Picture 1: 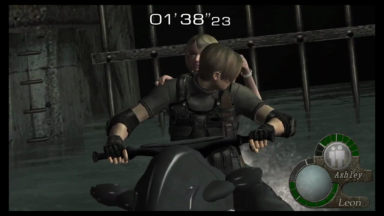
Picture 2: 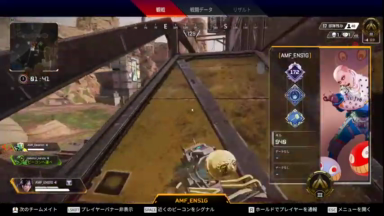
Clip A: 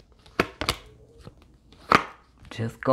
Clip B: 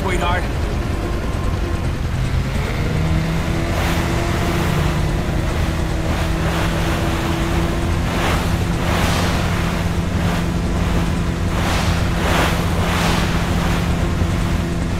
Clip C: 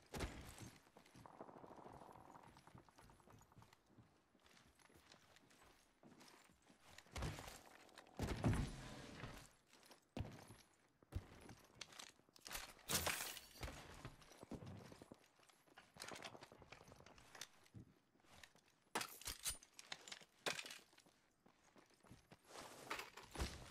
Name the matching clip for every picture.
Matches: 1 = B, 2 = C